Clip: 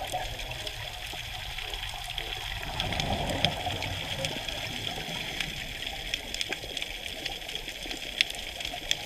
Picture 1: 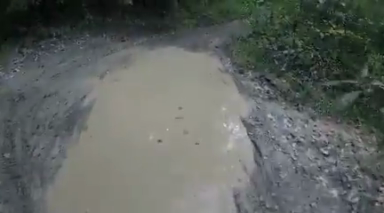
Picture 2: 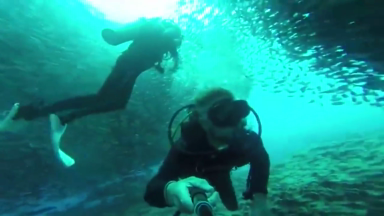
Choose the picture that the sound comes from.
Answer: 2